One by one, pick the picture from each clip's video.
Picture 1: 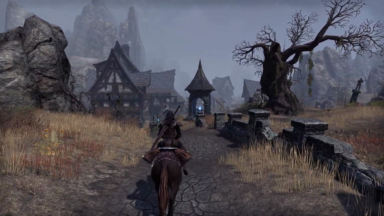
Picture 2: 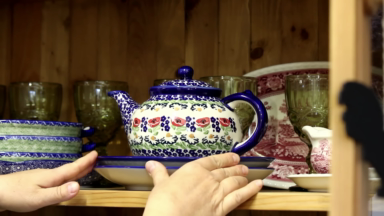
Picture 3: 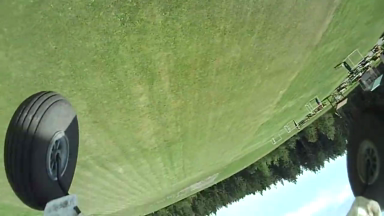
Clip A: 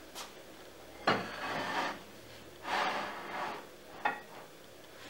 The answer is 2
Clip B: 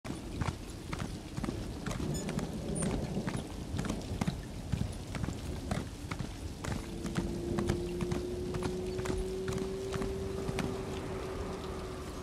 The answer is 1